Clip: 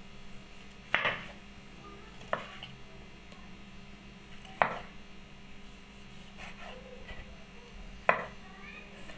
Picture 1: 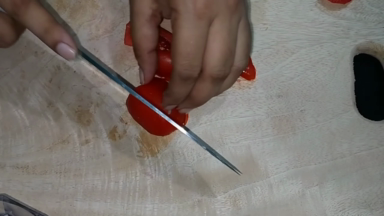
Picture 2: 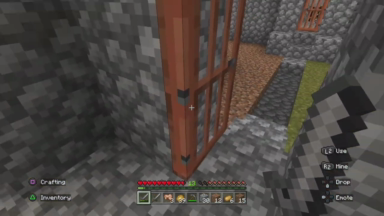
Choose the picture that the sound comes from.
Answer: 1